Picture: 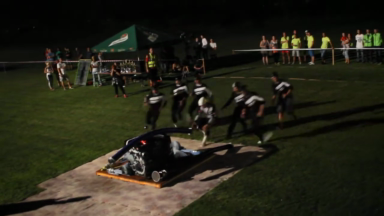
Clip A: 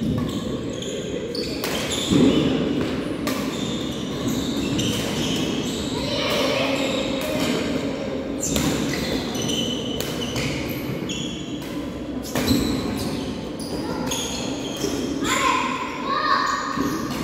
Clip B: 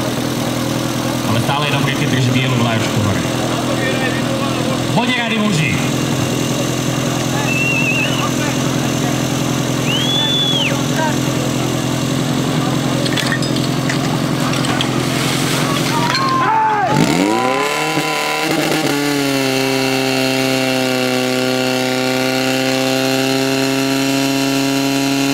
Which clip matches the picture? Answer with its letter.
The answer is B